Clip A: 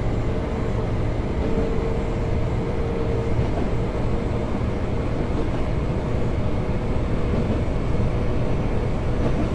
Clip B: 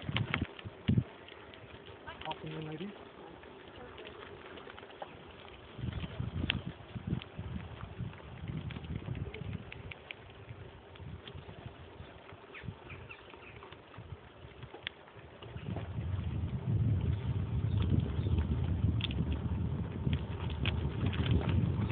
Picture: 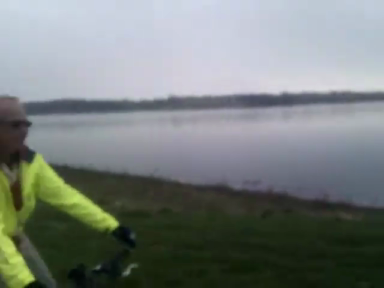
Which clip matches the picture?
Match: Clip B